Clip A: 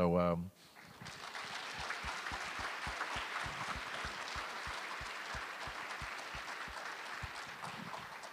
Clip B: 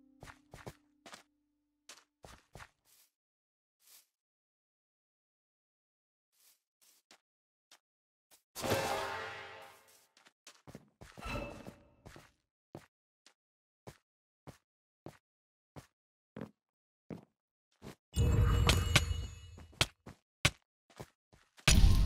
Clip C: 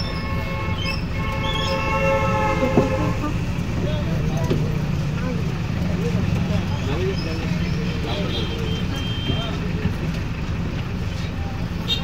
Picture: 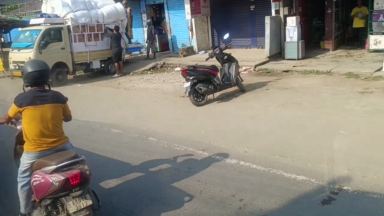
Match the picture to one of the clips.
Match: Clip C